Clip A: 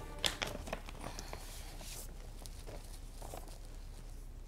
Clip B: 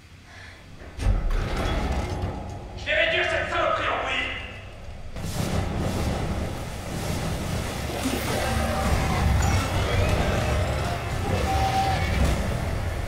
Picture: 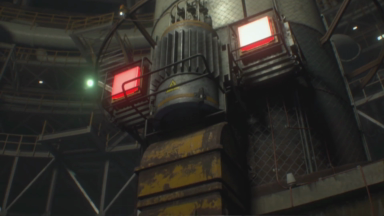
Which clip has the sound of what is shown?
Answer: B